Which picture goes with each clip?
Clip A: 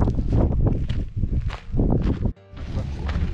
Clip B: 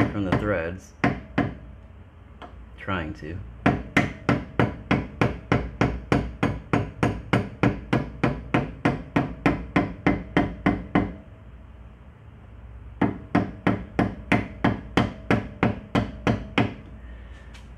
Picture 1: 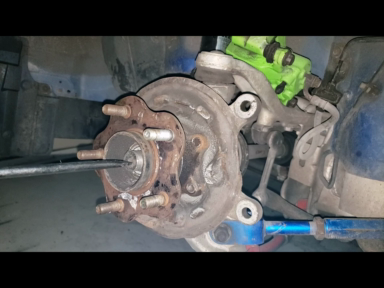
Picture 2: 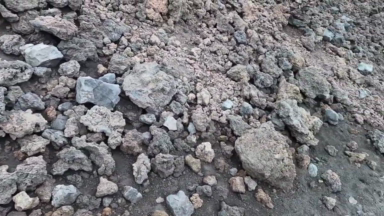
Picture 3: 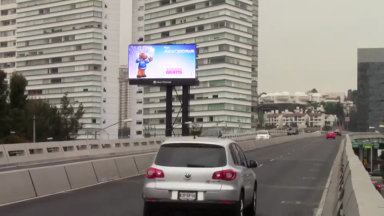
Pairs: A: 2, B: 1